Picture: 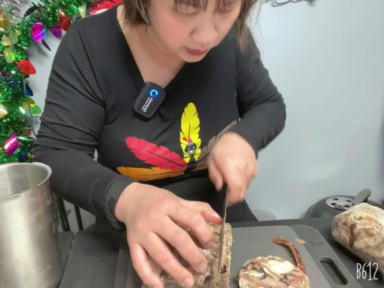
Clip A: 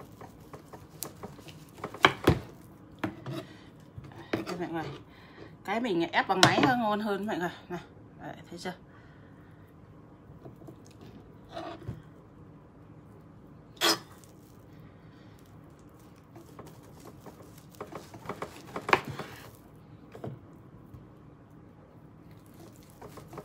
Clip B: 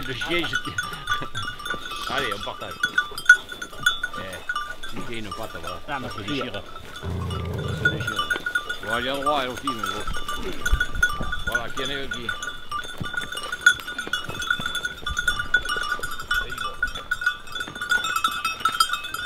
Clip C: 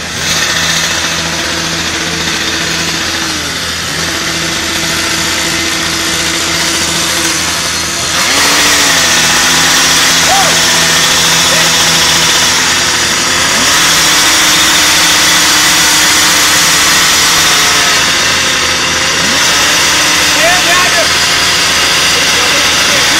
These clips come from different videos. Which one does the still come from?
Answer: A